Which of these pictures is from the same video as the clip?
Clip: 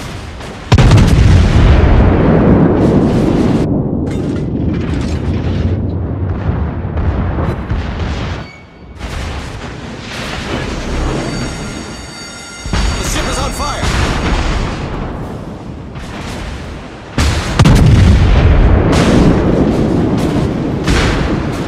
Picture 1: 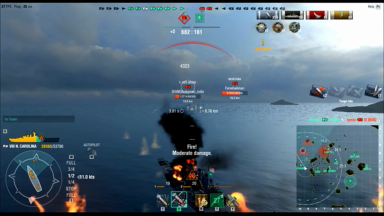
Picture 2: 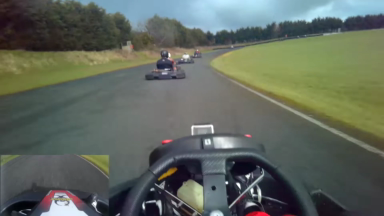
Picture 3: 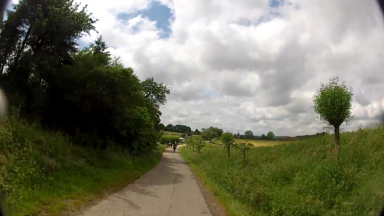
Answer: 1